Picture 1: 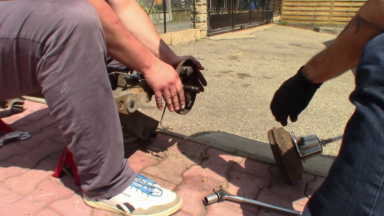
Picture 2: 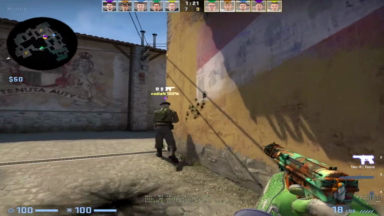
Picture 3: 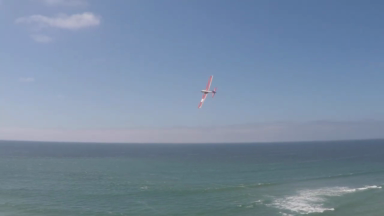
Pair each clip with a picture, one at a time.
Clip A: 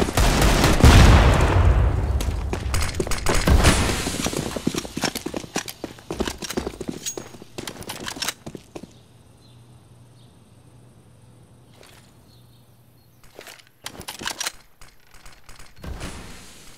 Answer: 2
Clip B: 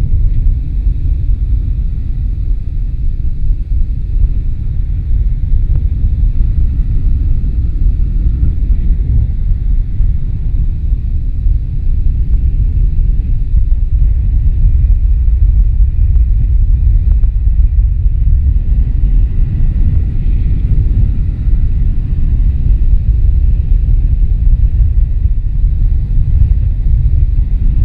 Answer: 3